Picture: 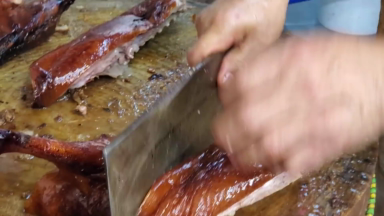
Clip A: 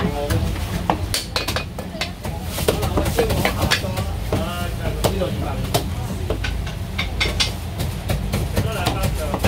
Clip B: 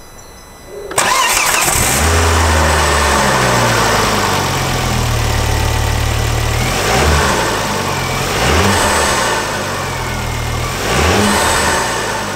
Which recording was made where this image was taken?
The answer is A